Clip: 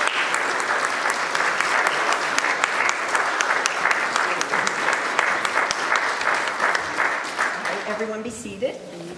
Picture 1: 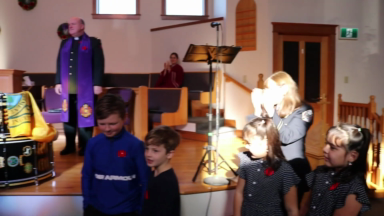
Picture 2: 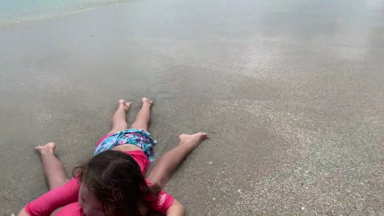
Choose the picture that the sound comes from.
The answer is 1